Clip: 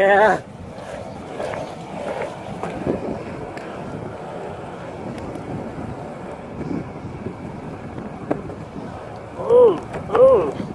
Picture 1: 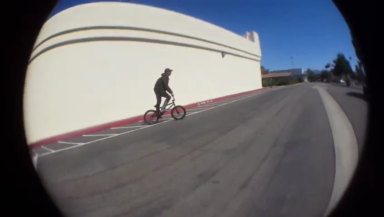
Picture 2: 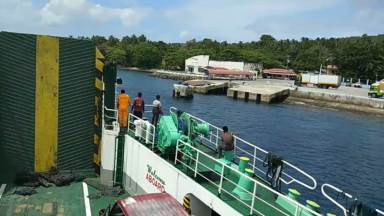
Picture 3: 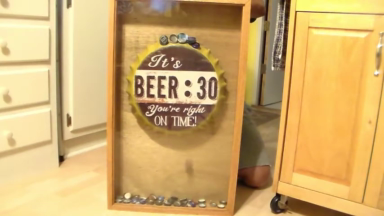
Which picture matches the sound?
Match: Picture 1